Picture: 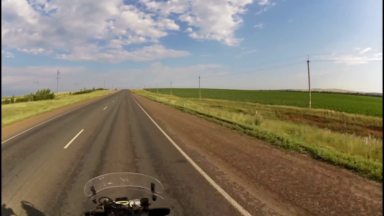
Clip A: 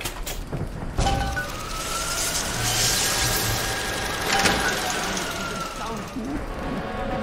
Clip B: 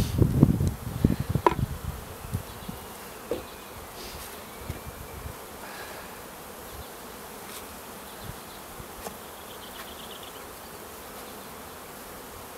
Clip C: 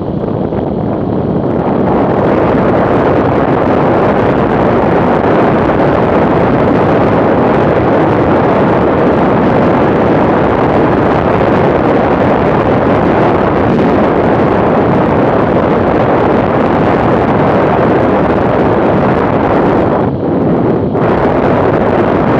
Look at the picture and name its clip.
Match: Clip C